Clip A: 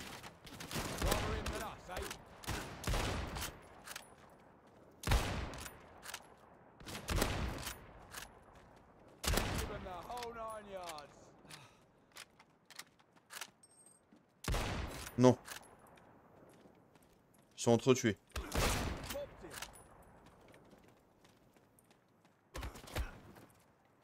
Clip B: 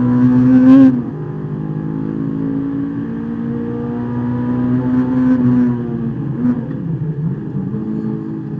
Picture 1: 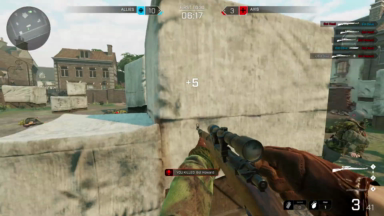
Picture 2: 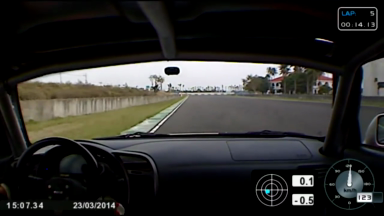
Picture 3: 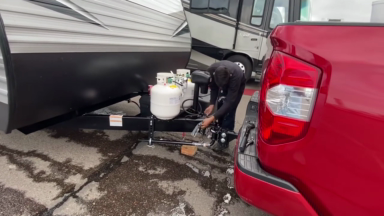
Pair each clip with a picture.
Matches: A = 1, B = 2